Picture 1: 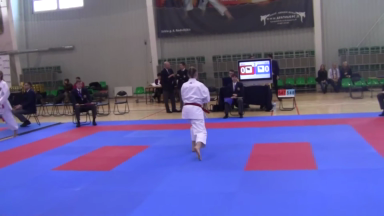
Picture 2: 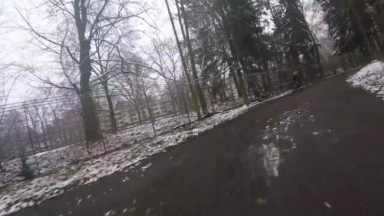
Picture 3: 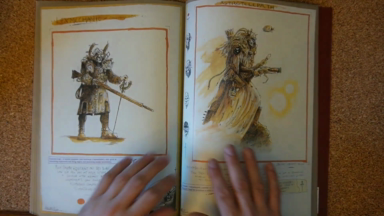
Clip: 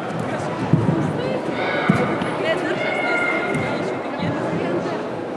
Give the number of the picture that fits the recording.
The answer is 1